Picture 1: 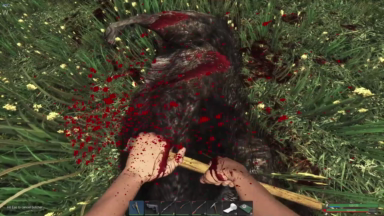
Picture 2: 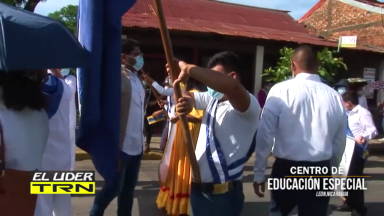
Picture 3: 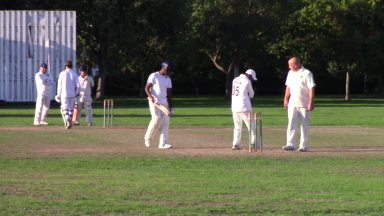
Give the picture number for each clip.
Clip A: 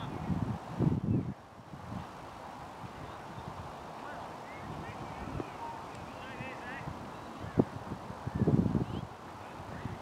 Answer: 3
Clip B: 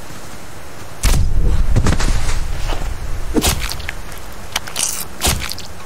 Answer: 1